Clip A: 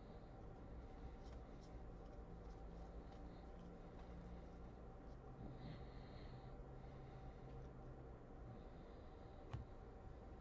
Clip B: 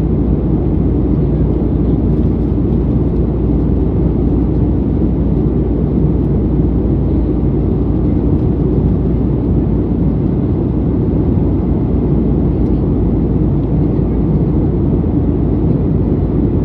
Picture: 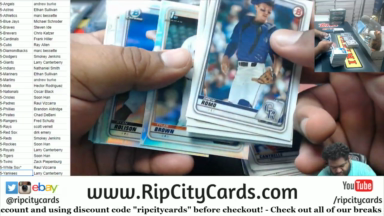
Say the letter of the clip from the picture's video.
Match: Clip A